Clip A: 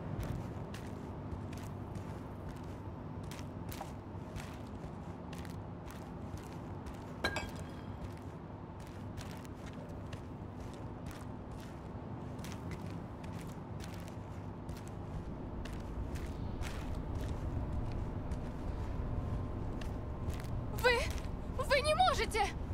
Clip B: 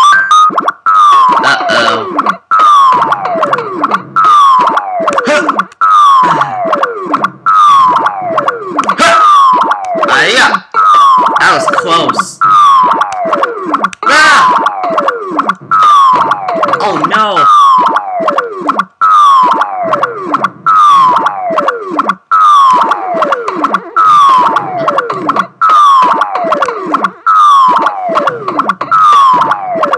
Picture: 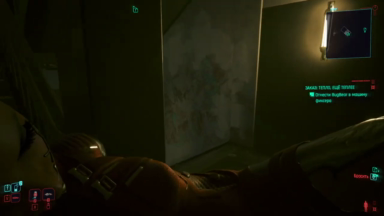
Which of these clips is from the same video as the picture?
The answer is A